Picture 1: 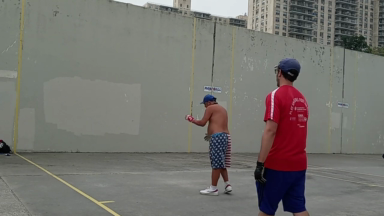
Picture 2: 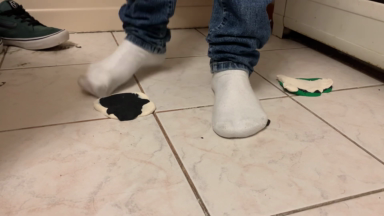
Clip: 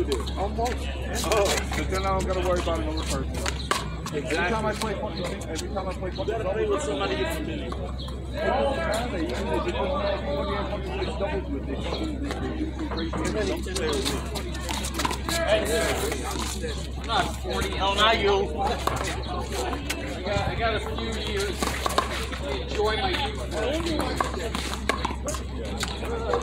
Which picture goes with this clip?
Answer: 1